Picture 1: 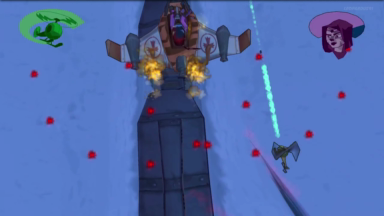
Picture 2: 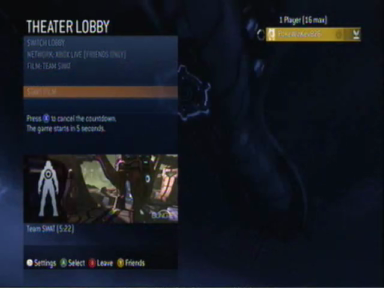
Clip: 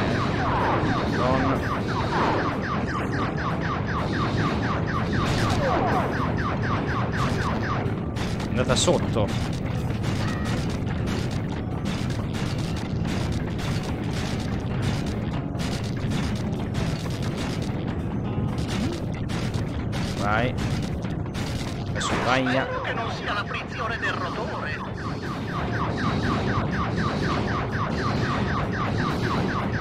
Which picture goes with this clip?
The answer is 1